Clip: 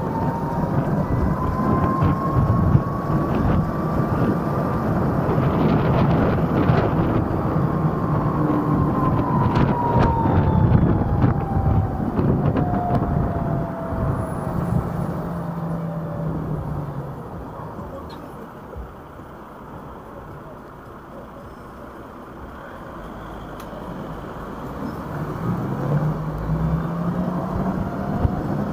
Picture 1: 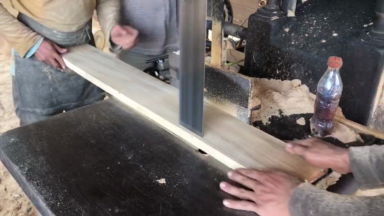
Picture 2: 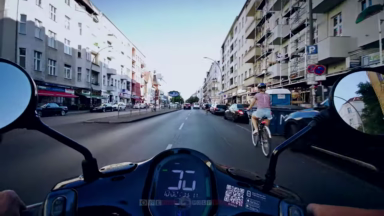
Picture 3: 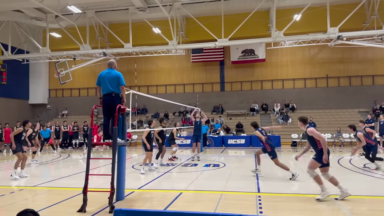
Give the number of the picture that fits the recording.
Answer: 2